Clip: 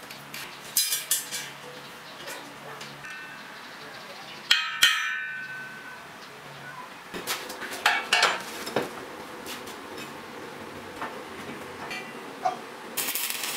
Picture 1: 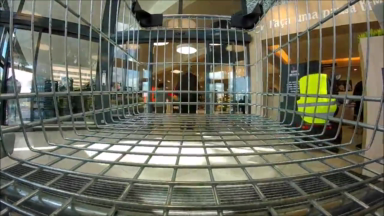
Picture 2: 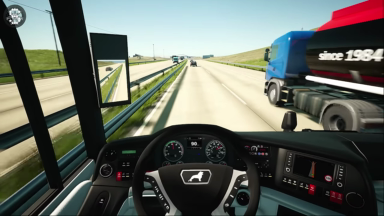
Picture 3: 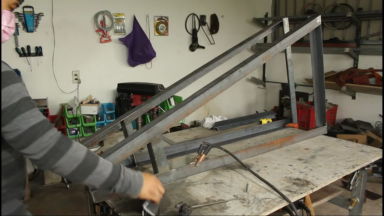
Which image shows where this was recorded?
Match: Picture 3